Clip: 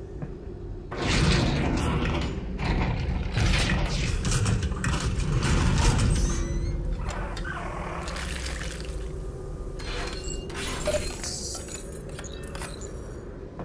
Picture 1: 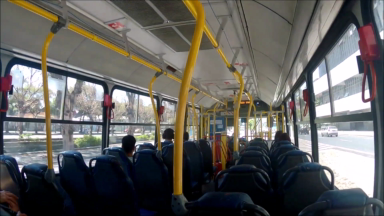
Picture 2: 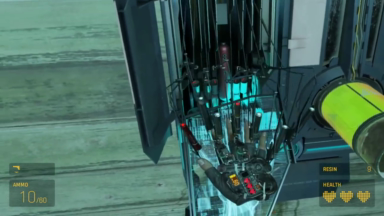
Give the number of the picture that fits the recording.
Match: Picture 2